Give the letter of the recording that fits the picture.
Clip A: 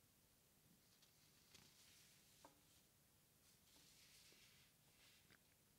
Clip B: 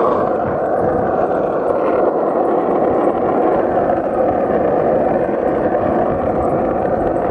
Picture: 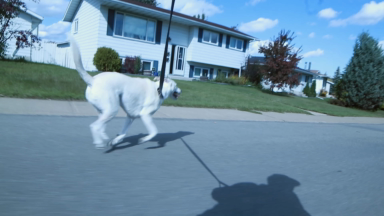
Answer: B